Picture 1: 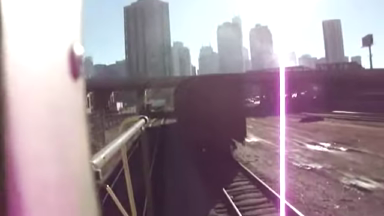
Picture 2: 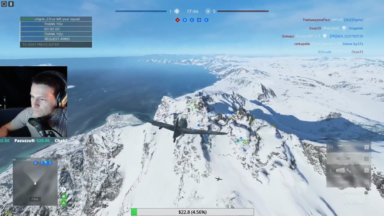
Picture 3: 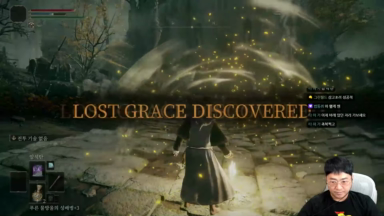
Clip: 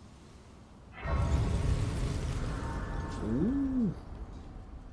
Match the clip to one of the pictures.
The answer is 3